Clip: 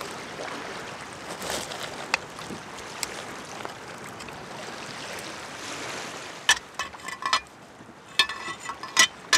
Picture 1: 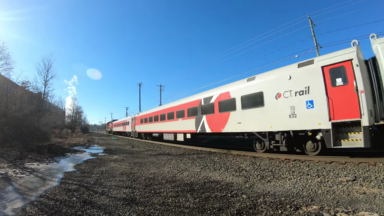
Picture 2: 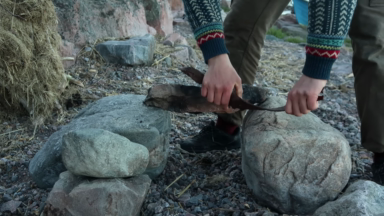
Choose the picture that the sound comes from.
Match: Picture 2